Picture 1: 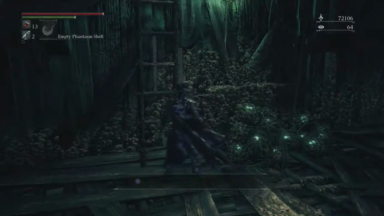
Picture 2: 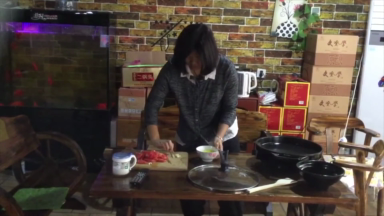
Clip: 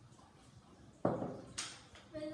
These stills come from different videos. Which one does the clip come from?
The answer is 2